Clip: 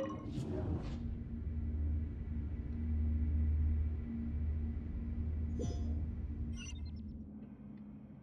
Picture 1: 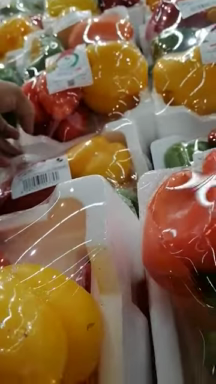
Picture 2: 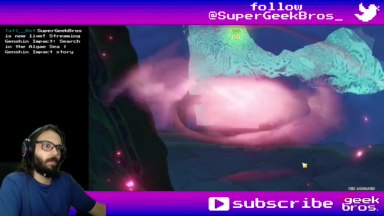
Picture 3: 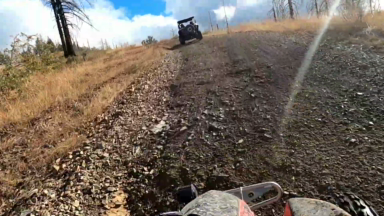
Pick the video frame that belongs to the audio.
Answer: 2